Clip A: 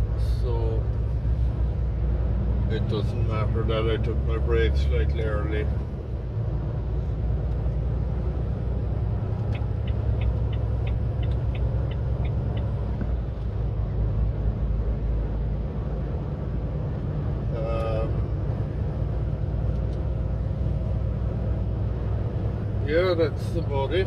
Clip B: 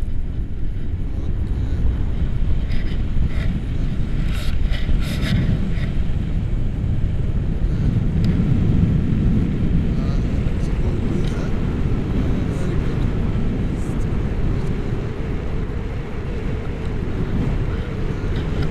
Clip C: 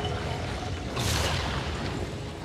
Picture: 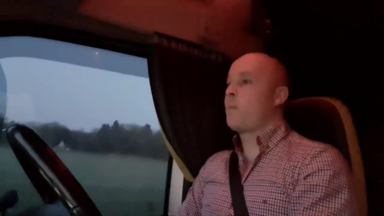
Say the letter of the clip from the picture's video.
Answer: A